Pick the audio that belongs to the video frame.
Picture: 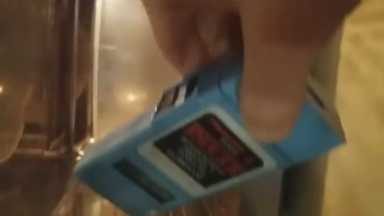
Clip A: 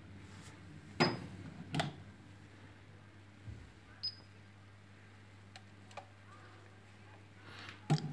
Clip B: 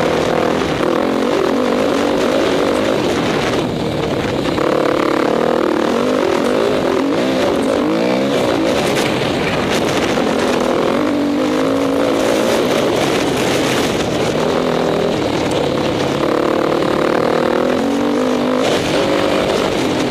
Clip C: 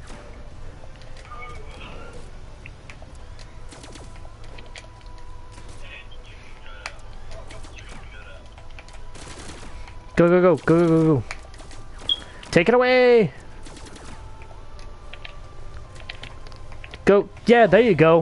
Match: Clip A